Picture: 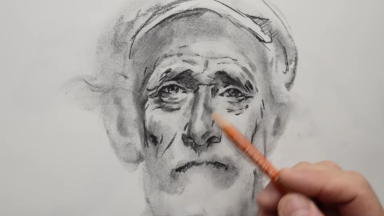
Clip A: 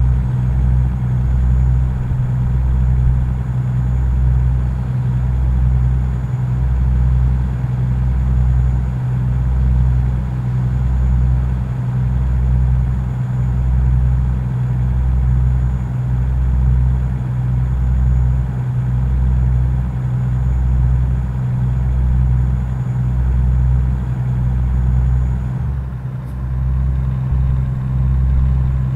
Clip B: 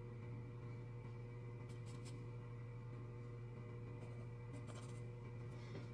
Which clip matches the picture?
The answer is B